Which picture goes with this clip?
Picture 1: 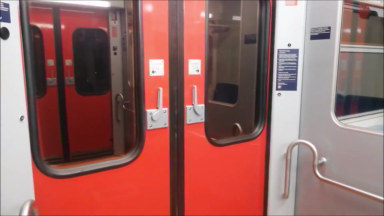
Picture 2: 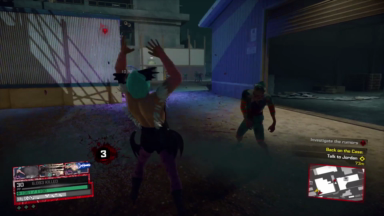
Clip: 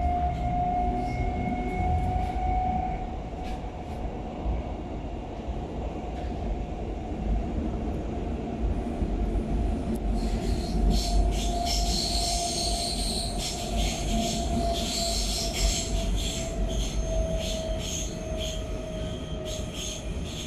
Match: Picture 1